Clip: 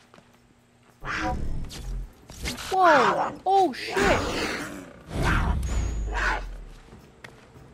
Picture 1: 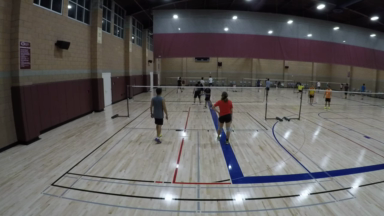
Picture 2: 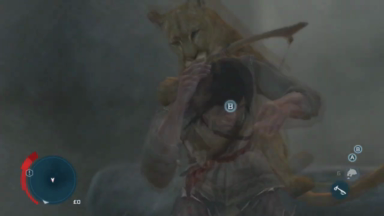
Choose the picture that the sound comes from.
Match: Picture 2